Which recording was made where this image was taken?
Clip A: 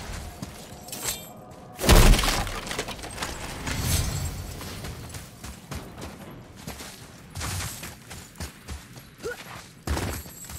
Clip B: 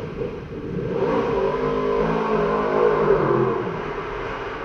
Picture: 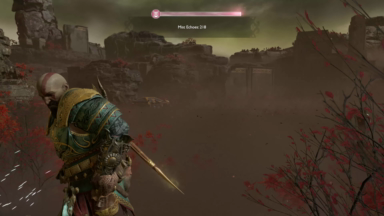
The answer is A